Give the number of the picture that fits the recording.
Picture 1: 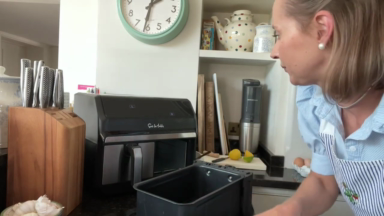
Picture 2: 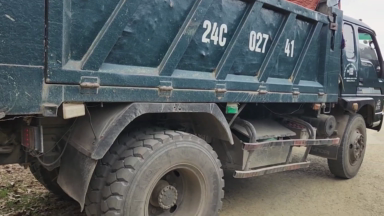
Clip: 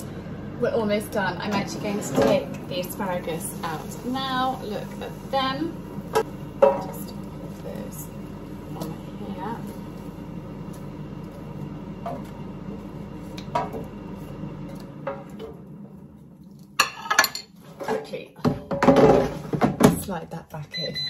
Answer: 1